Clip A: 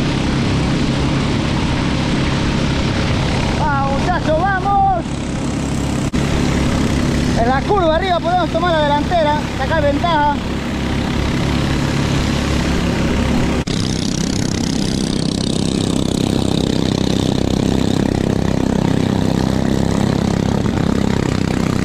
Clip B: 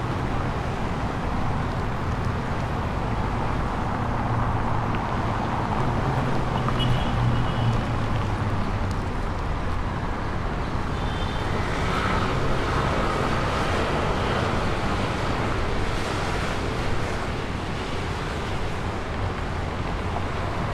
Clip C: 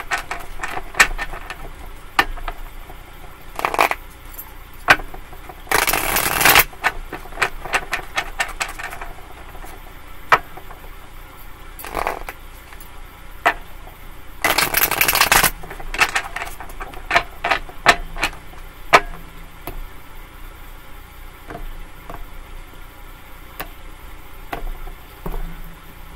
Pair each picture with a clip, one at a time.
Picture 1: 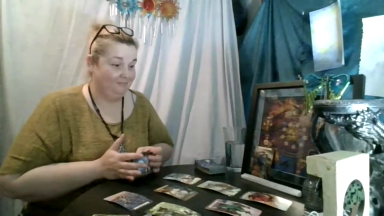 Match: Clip C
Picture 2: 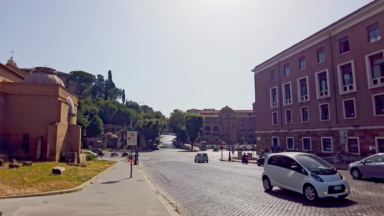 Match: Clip B